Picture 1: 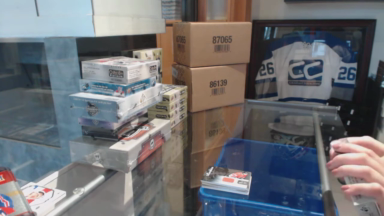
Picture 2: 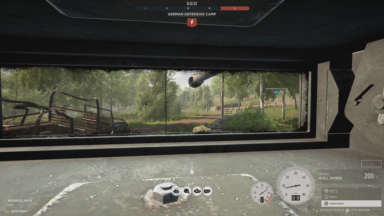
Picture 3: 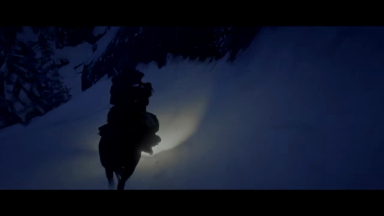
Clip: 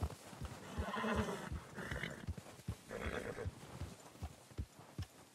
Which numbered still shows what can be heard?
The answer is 3